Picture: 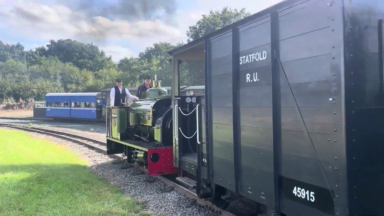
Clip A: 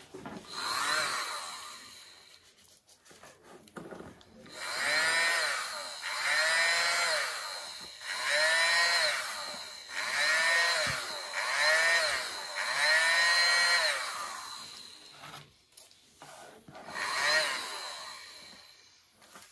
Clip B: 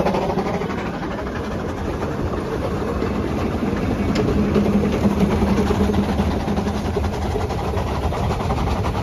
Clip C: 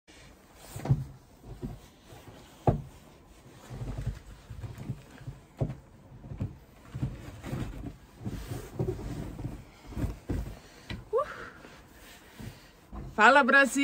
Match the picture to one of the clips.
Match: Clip B